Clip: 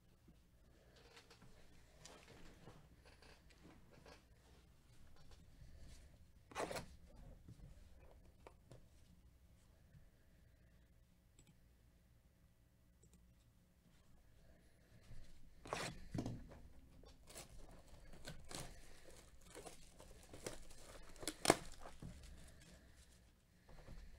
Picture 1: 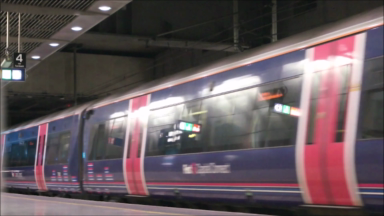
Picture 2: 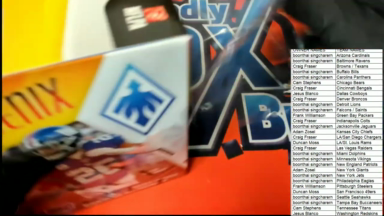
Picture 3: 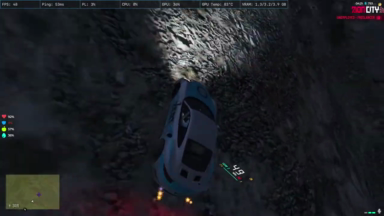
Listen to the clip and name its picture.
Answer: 2